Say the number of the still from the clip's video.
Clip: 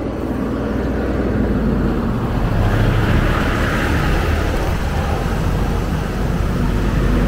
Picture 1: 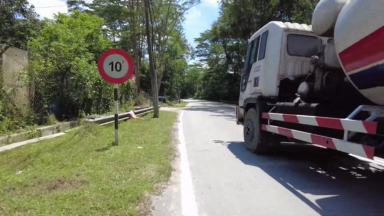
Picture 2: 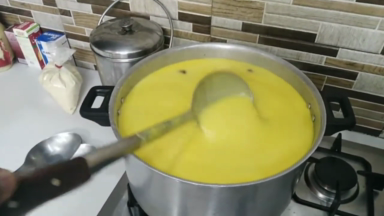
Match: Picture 1